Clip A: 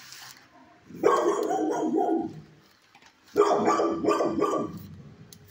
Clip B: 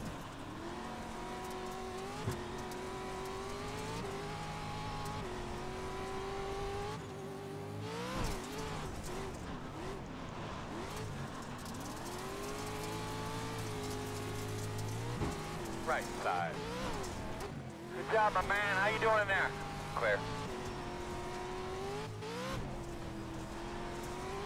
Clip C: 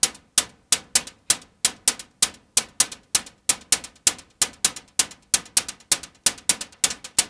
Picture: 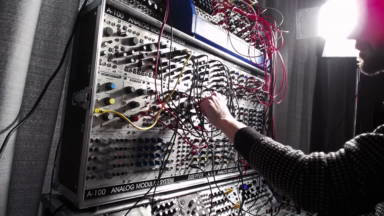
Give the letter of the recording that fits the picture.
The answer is C